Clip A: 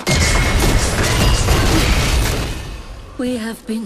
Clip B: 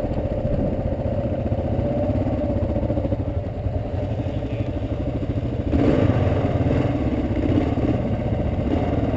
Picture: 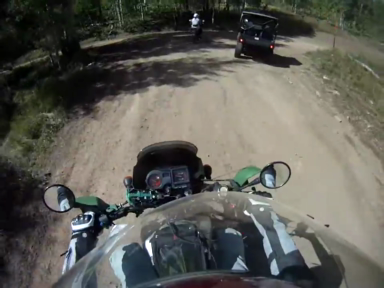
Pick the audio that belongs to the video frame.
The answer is B